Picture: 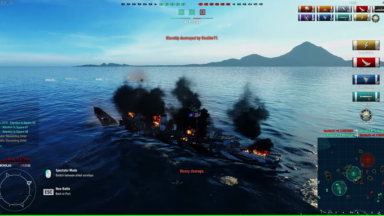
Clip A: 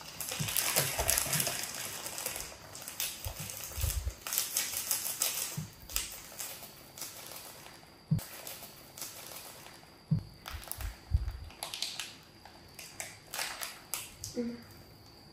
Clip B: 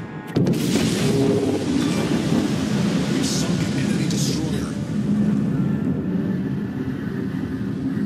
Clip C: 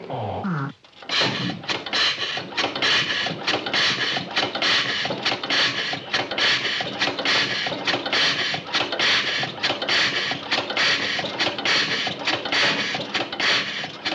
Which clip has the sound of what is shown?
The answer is B